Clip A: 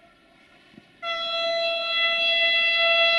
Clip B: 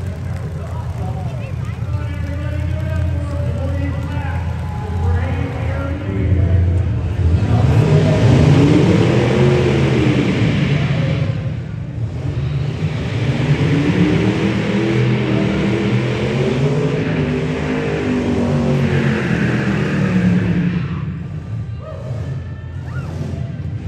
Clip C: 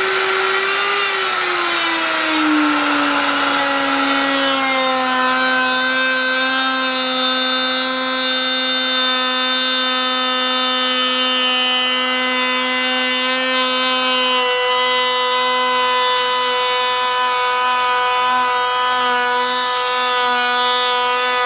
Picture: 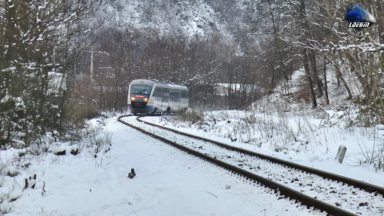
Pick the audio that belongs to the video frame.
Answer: A